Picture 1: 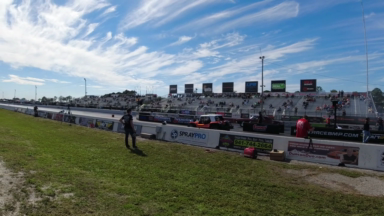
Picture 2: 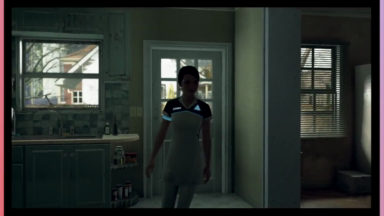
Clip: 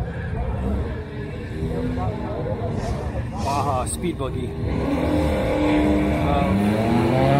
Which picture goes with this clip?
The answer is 1